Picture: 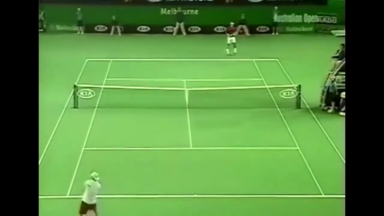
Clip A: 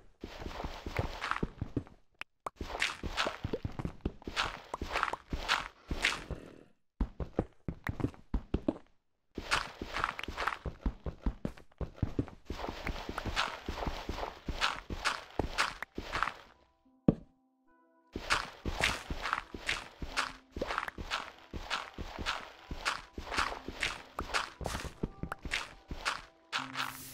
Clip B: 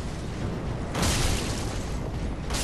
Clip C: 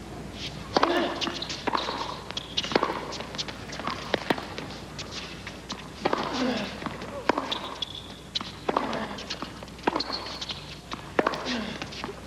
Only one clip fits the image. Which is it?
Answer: C